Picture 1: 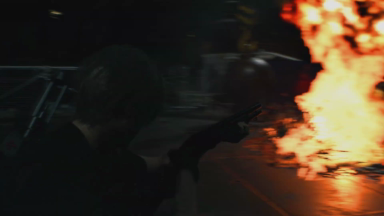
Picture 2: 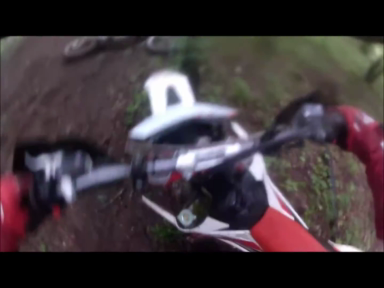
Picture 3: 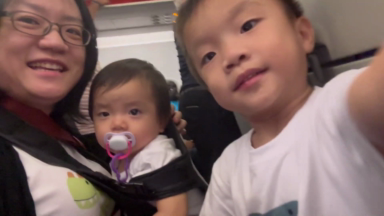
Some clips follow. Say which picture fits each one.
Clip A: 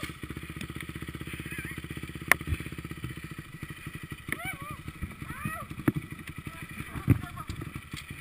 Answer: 2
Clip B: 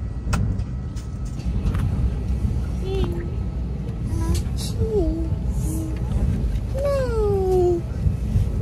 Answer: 3